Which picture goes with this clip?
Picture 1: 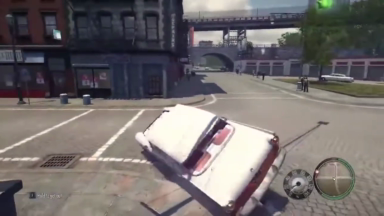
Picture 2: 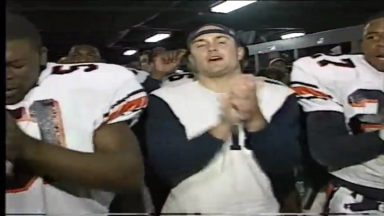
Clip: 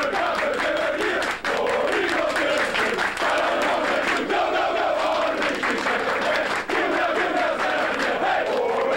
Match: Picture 2